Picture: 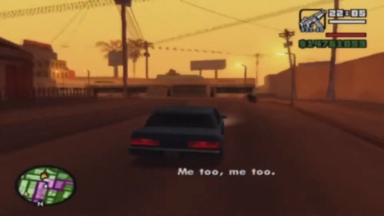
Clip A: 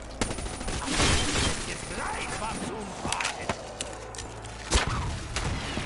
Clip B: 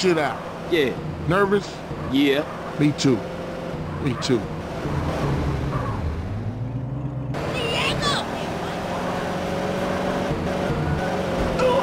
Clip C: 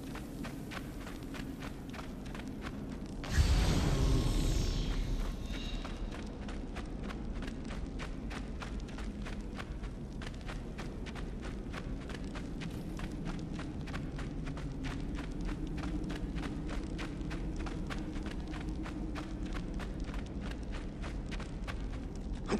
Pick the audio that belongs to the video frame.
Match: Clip B